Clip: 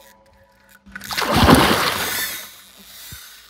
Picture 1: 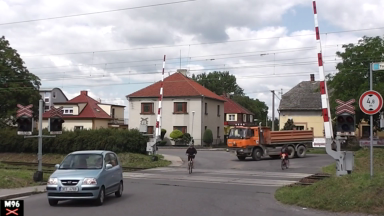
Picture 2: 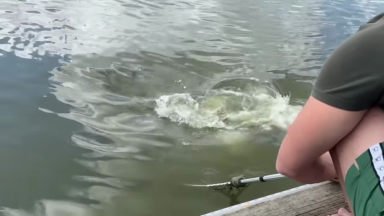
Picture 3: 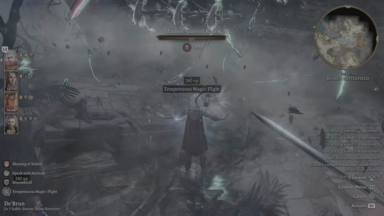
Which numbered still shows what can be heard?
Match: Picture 2